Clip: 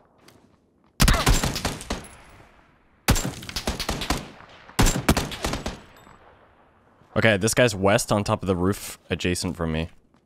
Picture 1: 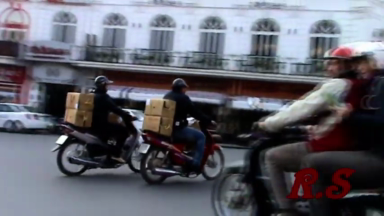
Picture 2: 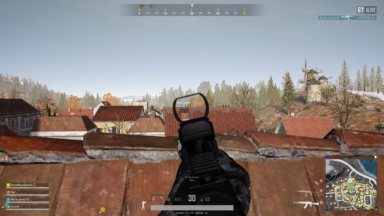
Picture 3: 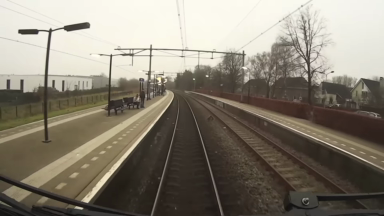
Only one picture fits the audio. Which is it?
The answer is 2